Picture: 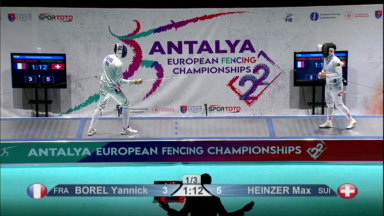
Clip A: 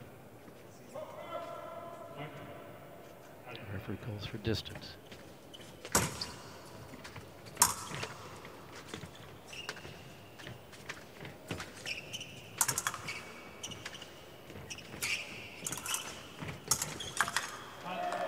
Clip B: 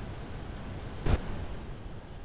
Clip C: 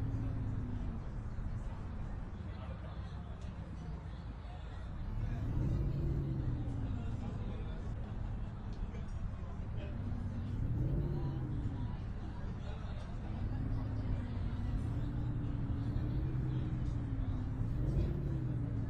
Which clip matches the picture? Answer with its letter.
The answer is A